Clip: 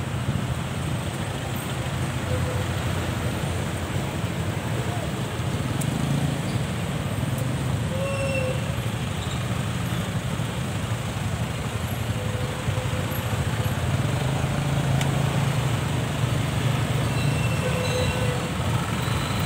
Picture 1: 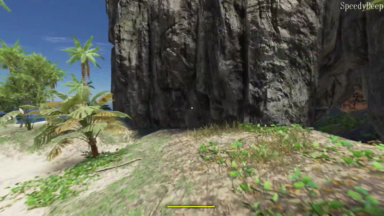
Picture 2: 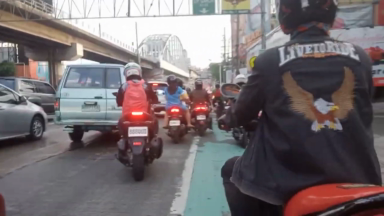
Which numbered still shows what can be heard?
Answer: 2